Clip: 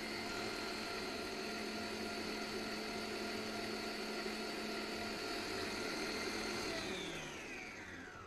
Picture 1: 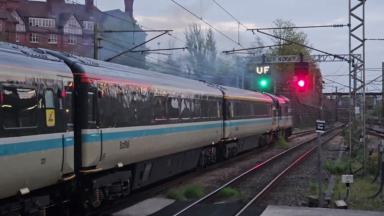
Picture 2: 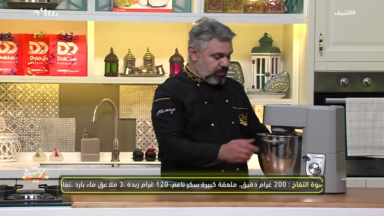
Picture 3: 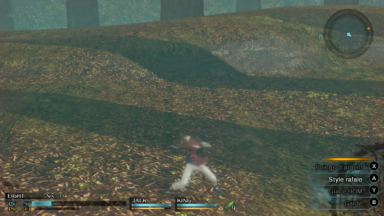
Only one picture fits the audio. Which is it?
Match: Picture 2